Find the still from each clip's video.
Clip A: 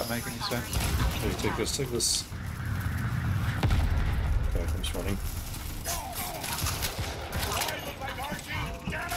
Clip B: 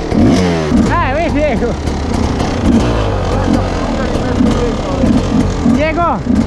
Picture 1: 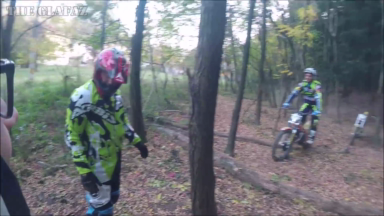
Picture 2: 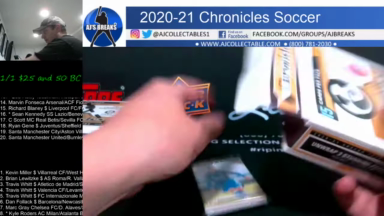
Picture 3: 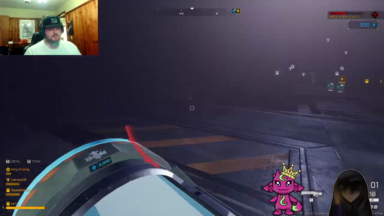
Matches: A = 3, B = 1